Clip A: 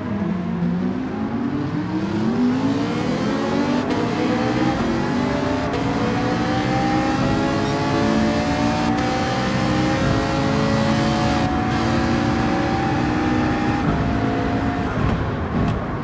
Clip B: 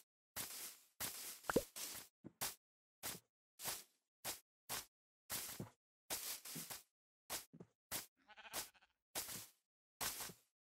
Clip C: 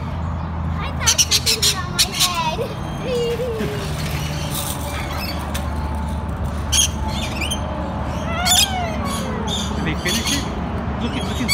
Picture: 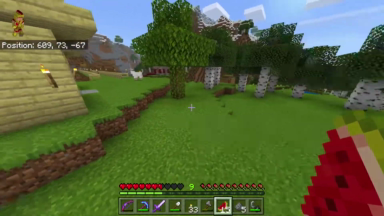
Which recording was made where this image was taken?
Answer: B